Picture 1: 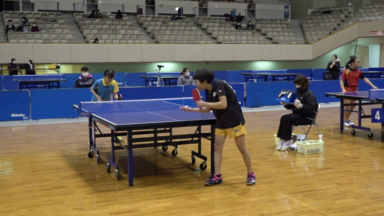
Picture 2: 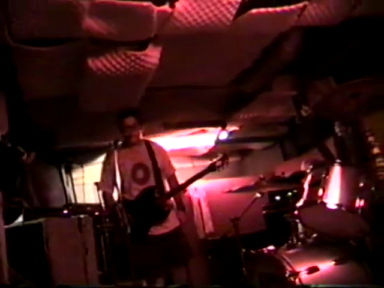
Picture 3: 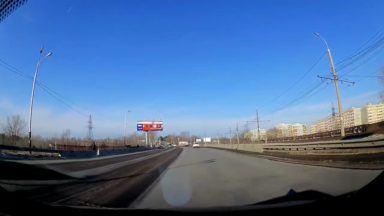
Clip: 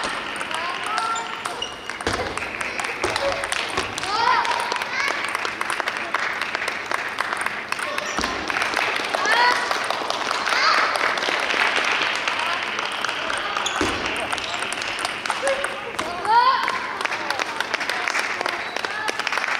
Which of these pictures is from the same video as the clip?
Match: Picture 1